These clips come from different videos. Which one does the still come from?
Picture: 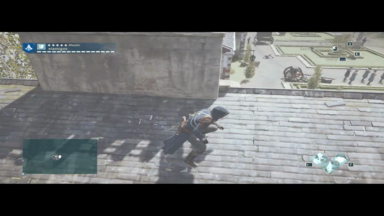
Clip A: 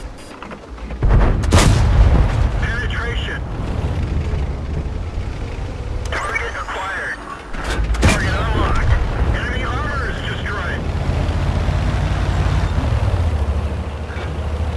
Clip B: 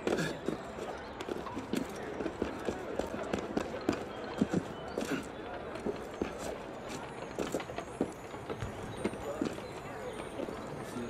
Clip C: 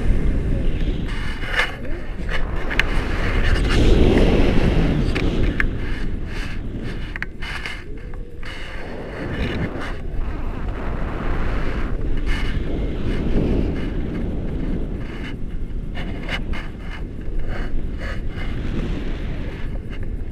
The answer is B